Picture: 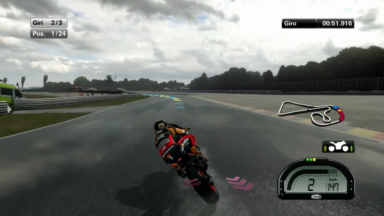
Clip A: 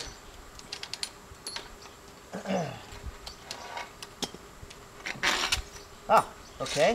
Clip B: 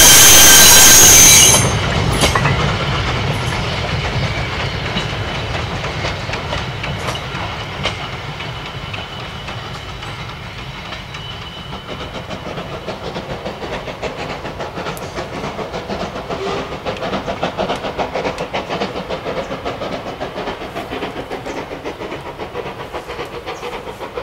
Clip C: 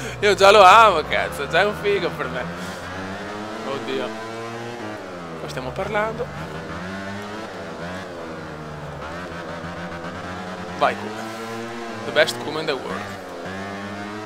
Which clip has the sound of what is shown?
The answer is C